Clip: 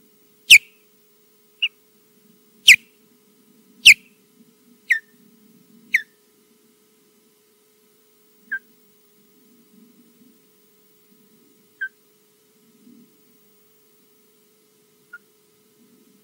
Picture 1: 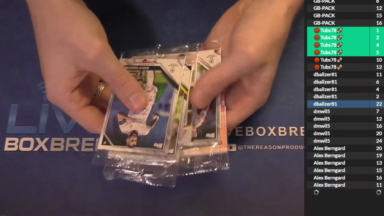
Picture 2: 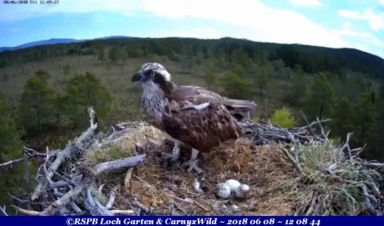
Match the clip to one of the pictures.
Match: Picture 2